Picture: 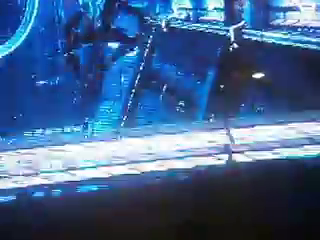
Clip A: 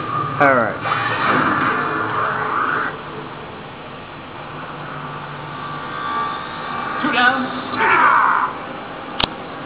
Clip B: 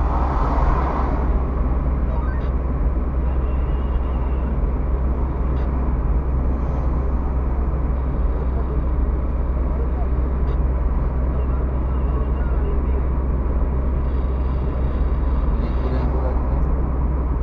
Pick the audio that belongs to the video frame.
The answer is A